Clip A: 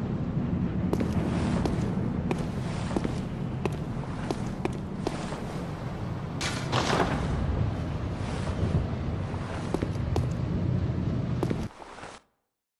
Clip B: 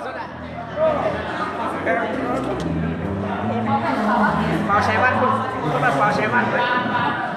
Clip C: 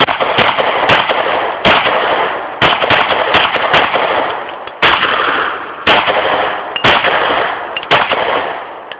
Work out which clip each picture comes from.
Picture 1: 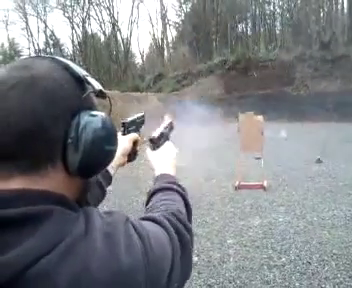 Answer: C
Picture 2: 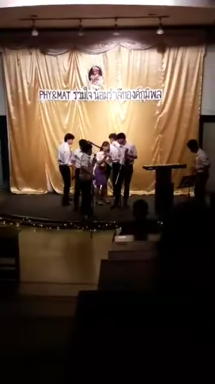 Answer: B